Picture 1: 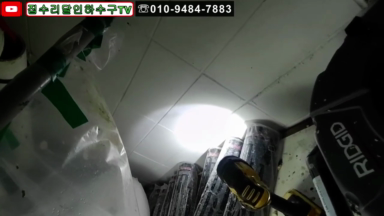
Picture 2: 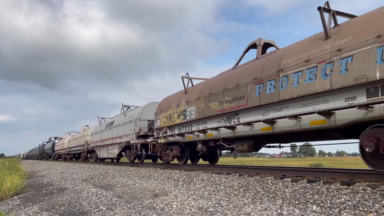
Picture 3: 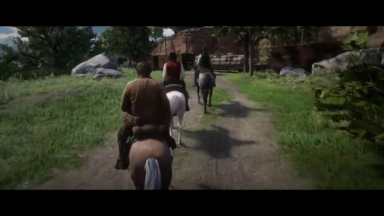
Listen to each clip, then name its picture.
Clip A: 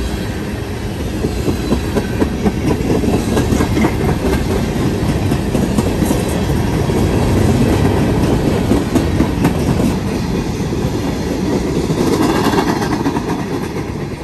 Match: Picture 2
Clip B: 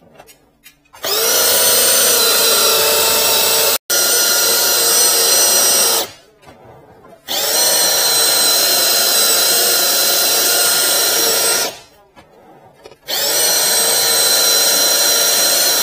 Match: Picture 1